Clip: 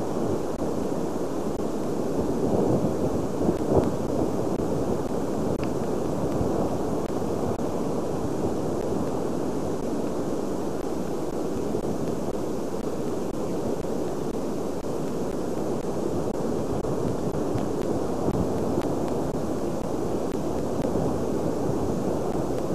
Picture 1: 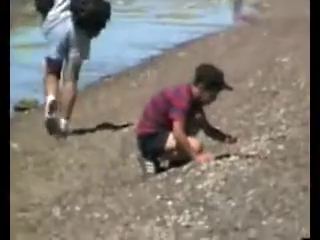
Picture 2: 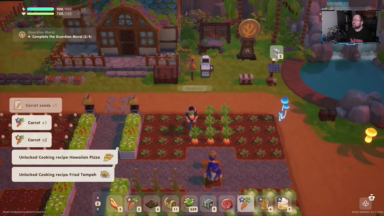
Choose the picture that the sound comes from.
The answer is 1